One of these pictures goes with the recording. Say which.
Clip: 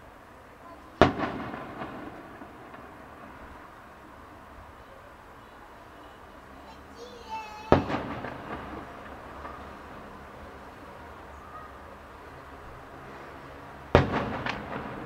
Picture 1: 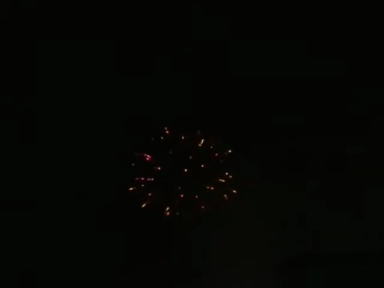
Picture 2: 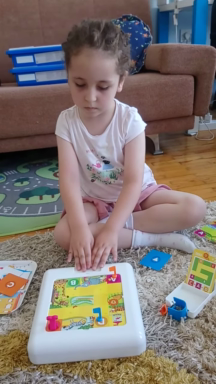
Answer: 1